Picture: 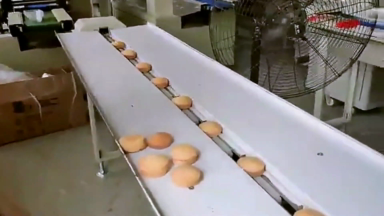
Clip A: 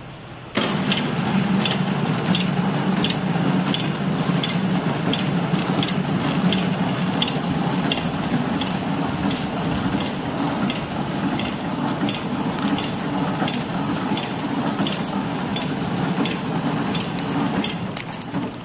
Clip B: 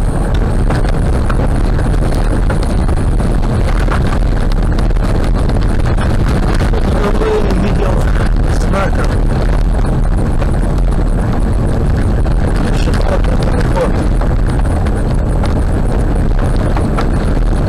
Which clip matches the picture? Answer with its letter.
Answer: A